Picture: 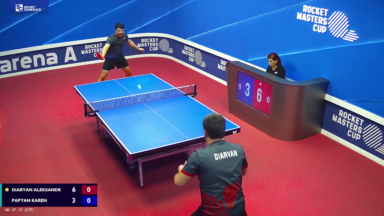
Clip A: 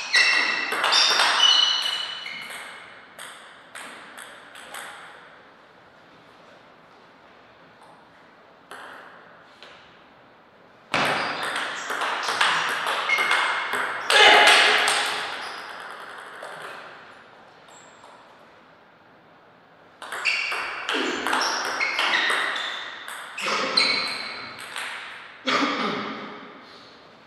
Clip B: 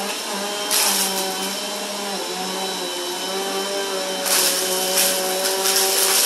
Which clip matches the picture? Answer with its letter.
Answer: A